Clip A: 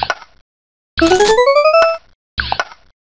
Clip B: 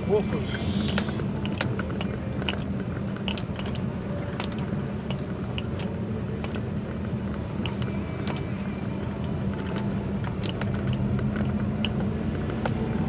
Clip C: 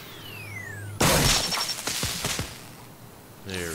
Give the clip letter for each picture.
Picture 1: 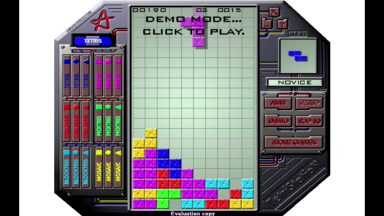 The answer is A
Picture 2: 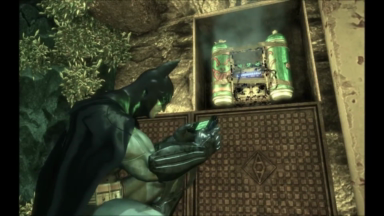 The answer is C